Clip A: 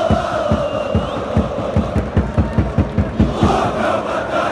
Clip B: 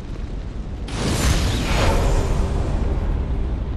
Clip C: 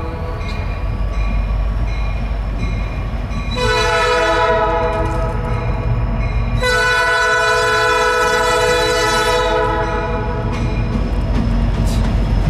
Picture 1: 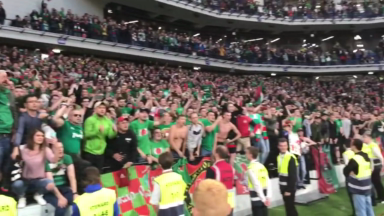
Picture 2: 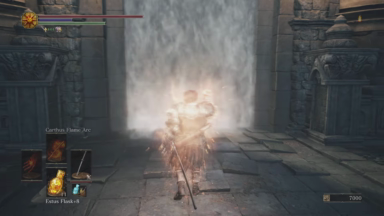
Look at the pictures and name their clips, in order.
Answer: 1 A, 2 B